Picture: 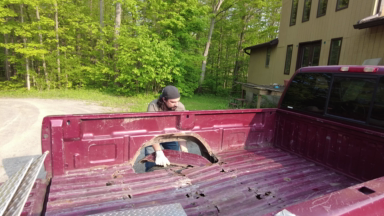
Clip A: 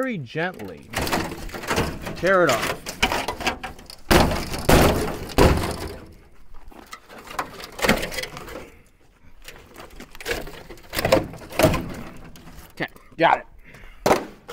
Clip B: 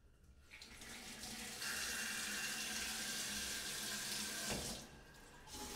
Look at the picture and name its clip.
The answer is A